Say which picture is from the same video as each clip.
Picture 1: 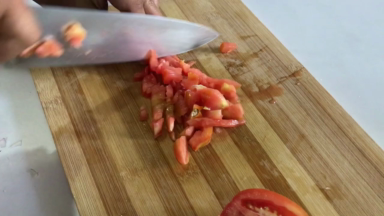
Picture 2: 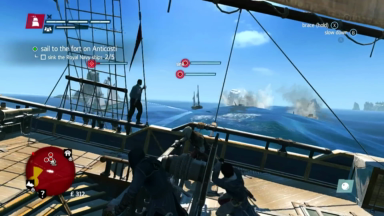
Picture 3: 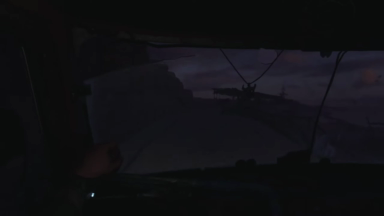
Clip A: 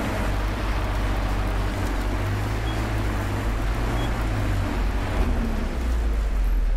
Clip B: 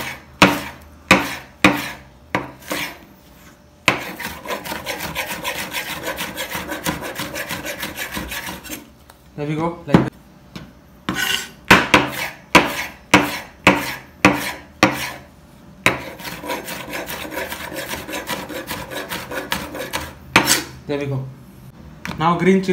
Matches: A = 3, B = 1